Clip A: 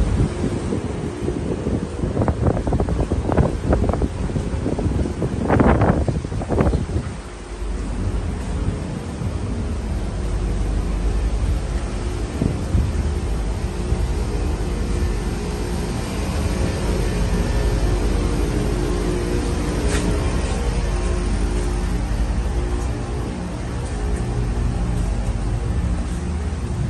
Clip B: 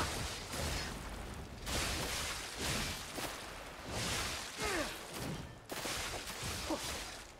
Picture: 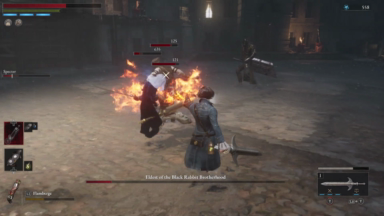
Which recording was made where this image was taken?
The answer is B